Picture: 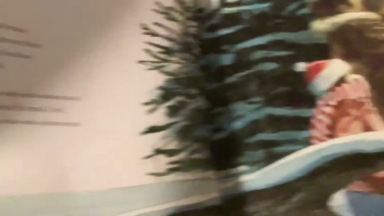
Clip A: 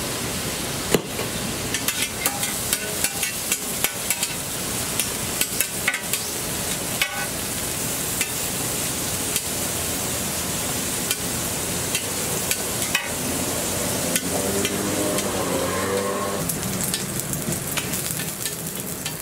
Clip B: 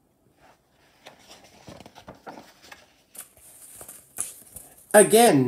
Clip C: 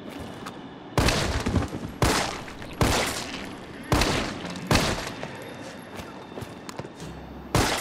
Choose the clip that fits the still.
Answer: B